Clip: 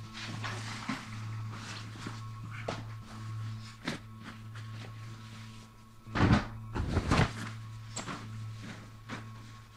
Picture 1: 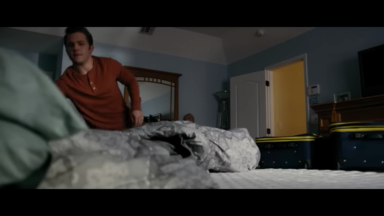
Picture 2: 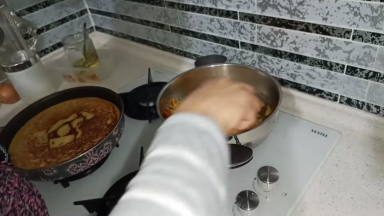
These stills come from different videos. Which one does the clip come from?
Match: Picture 1